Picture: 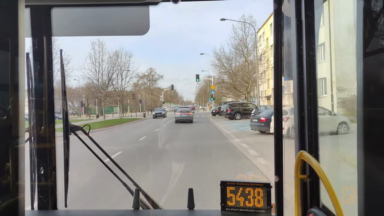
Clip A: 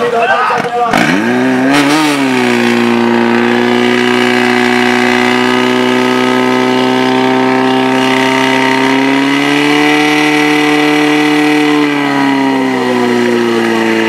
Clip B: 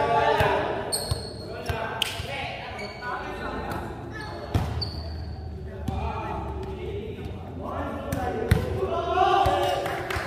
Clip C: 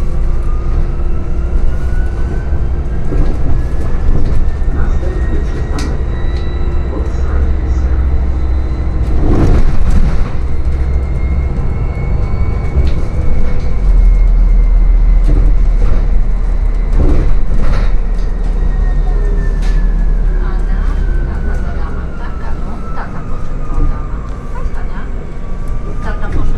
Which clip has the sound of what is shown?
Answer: C